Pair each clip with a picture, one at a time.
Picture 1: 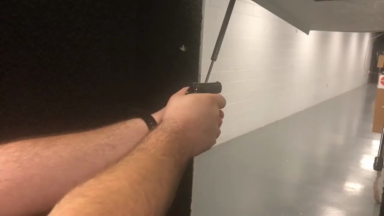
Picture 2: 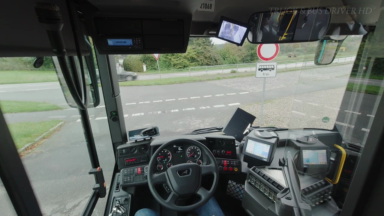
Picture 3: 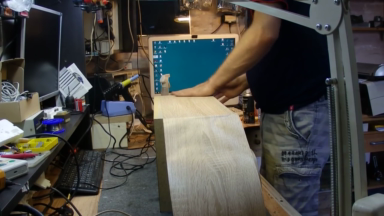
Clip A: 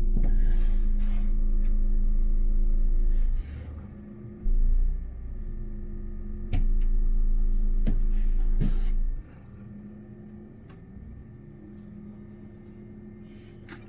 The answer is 2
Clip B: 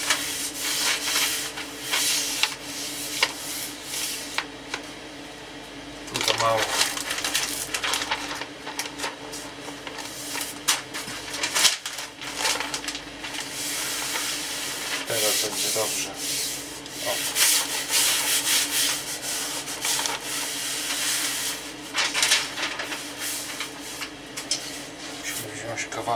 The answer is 3